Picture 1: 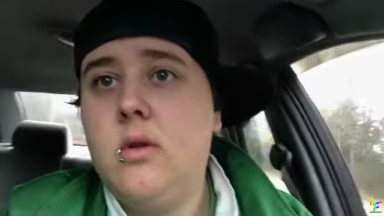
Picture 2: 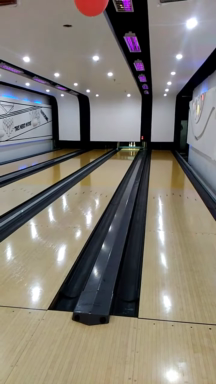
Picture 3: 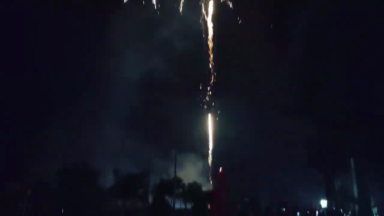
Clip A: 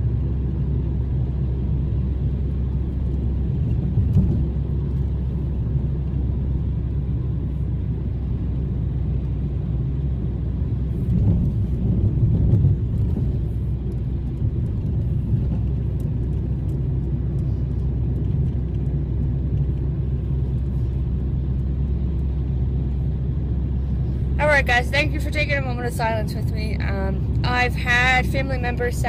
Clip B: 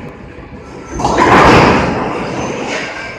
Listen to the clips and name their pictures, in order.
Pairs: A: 1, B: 2